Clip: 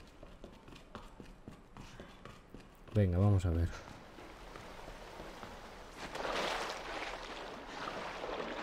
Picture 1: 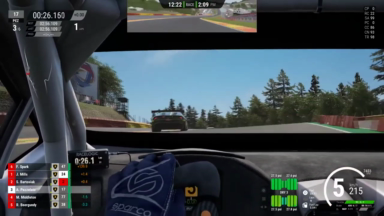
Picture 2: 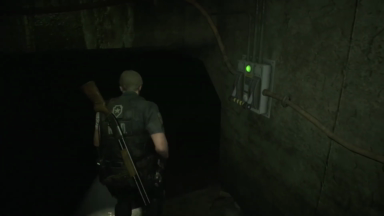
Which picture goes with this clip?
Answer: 2